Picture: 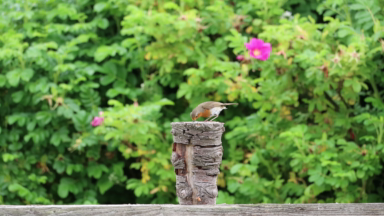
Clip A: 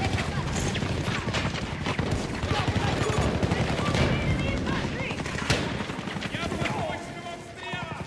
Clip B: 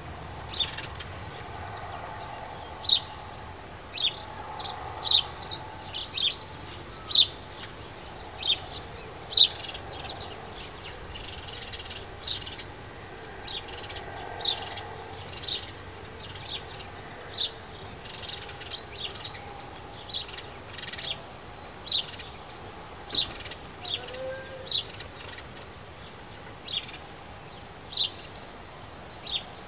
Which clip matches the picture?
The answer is B